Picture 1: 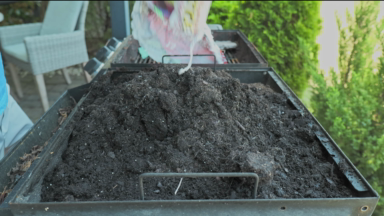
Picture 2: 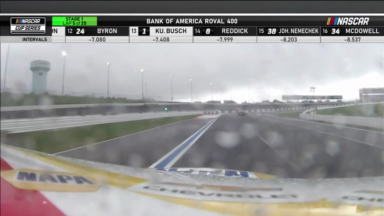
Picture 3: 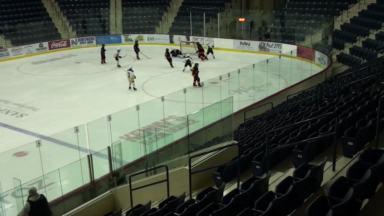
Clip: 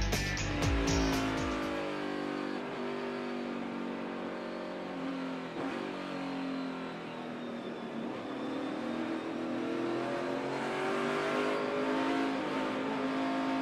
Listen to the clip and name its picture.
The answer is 2